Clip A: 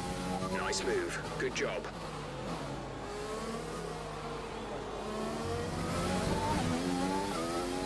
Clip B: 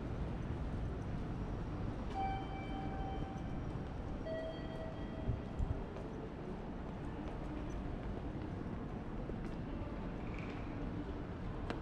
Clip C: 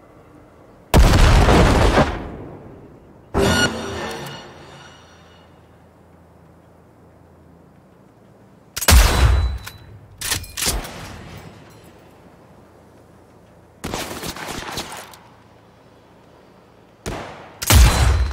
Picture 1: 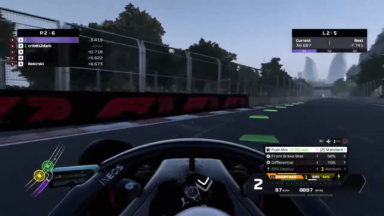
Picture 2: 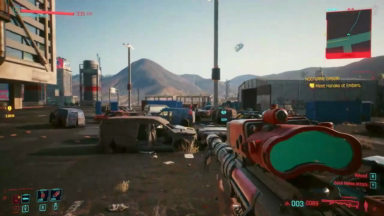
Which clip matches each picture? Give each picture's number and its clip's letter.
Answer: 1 A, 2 C